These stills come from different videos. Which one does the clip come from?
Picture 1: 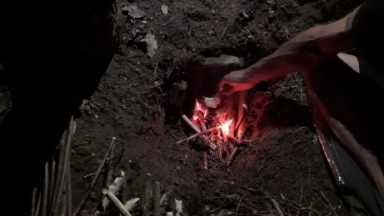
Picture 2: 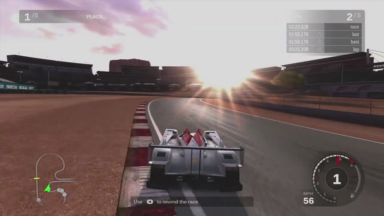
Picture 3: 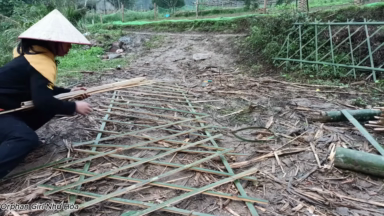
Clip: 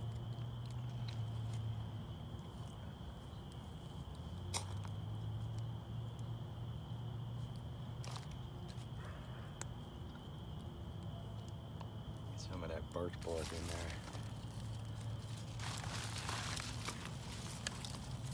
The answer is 1